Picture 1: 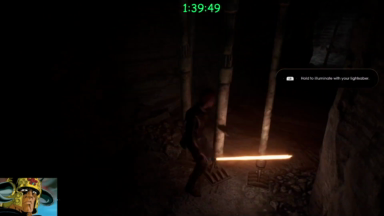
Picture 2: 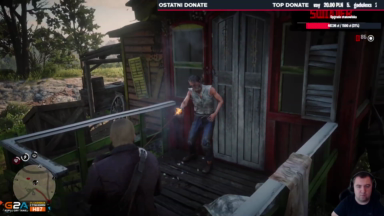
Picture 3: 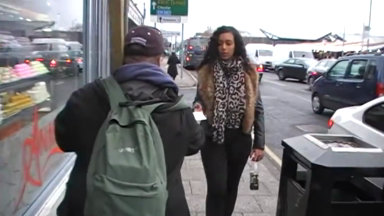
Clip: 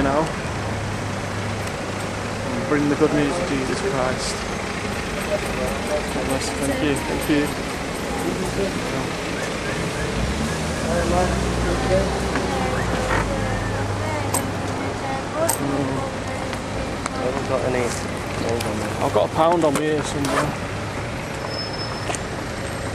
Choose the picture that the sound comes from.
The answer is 3